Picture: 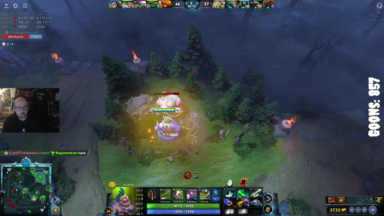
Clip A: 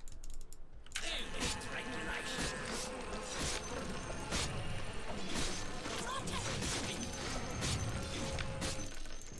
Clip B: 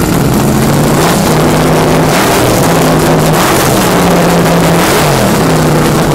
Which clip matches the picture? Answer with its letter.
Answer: A